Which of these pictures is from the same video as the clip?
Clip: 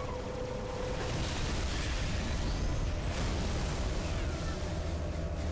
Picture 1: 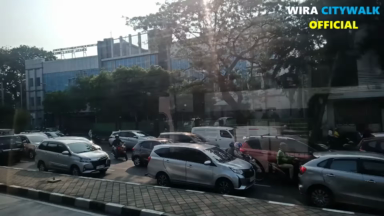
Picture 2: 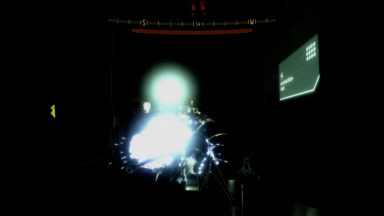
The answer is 2